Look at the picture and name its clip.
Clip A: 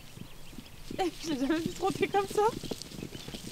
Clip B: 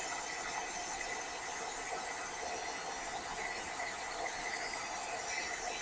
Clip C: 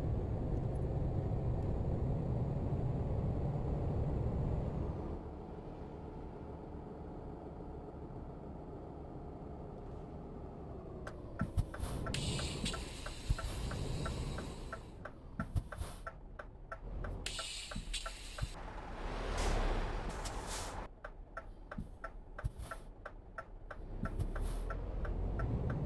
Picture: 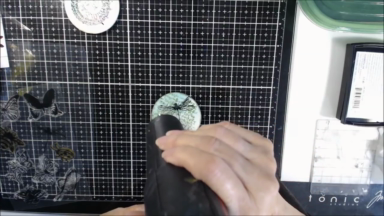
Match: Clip B